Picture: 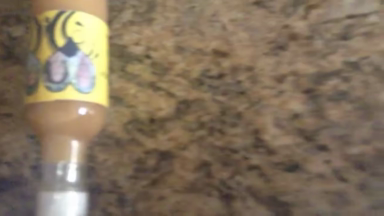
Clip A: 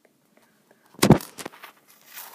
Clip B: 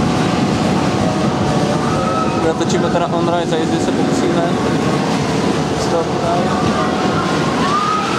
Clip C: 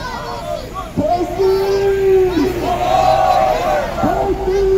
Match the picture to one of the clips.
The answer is A